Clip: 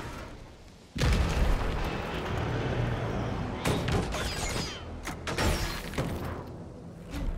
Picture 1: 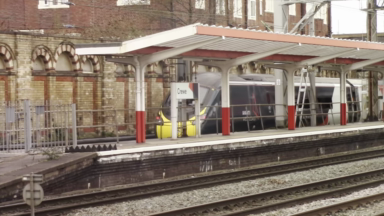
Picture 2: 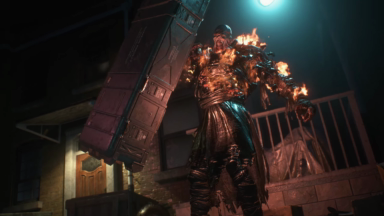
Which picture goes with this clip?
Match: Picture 2